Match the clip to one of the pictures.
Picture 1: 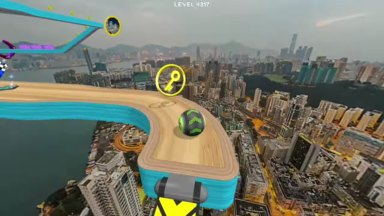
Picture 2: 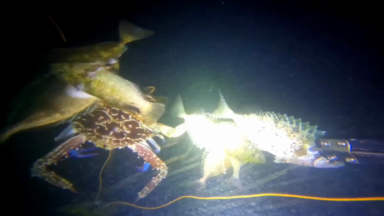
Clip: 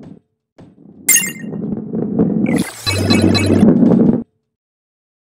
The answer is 1